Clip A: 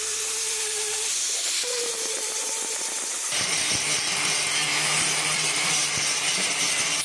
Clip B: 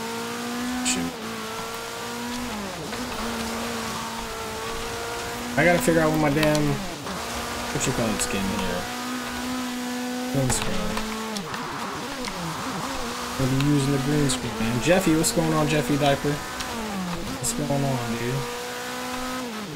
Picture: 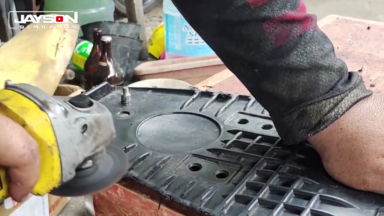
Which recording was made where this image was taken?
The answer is A